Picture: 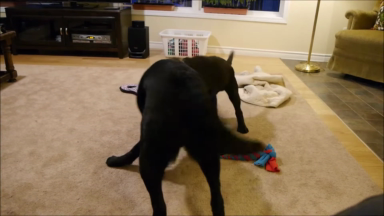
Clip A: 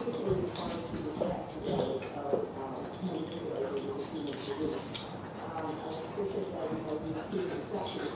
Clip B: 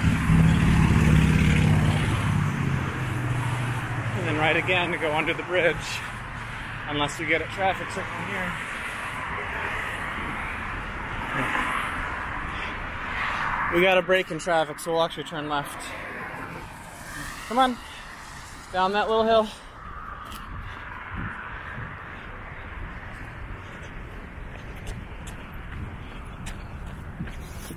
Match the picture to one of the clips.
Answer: A